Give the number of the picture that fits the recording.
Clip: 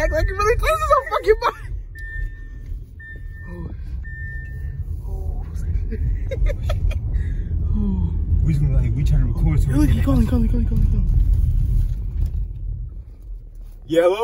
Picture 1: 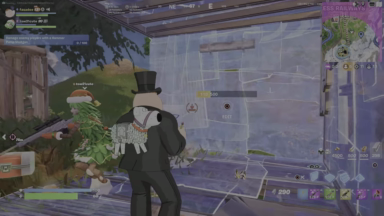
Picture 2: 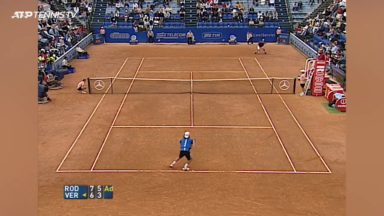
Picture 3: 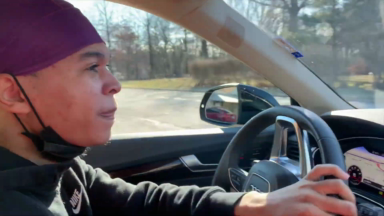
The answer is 3